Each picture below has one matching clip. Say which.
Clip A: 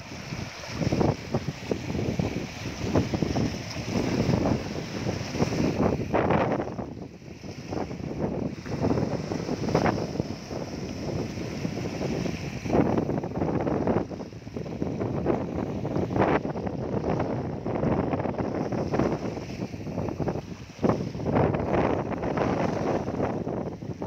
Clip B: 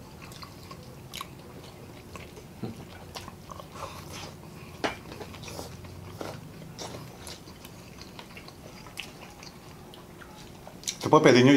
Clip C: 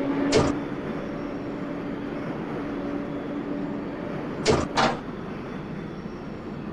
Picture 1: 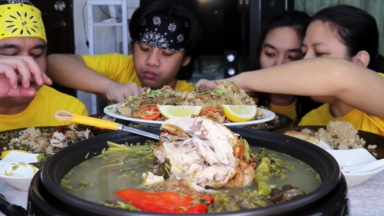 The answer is B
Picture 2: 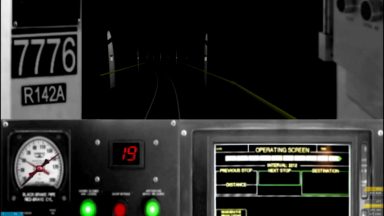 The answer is C